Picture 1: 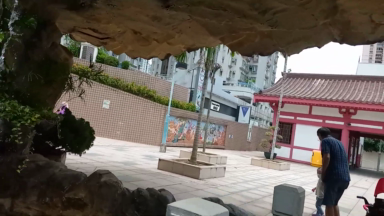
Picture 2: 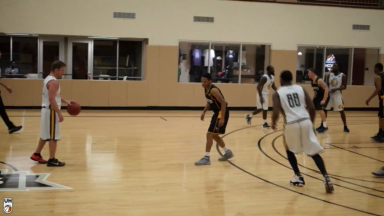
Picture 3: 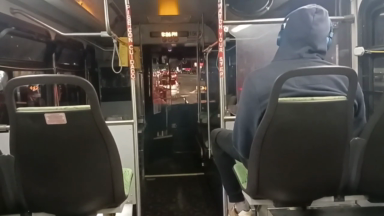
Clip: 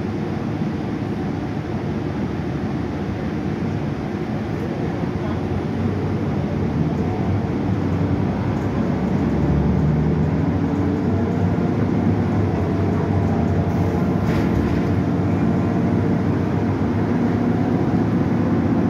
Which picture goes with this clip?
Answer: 3